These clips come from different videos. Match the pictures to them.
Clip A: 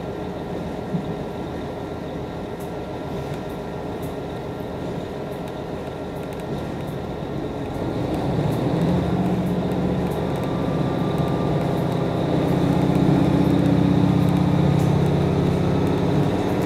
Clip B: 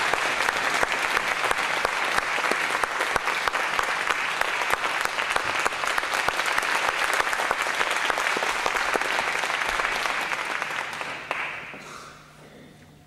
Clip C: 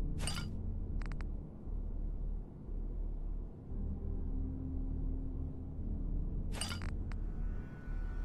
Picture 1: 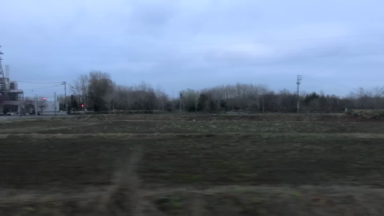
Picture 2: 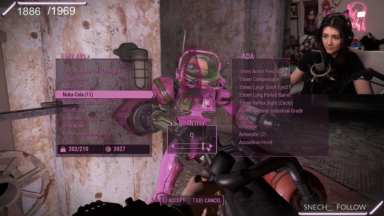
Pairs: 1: A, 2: C